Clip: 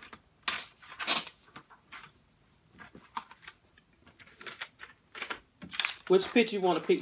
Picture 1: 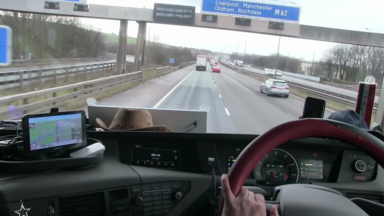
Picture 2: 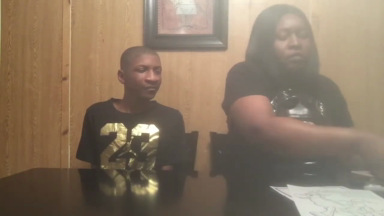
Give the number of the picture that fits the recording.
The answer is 2